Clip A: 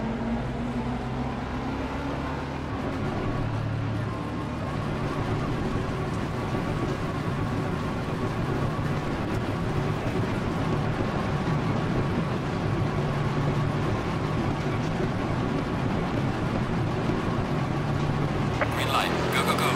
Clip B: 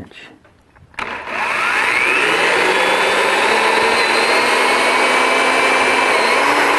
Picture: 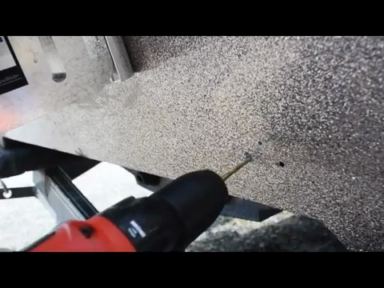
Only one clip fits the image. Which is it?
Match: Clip B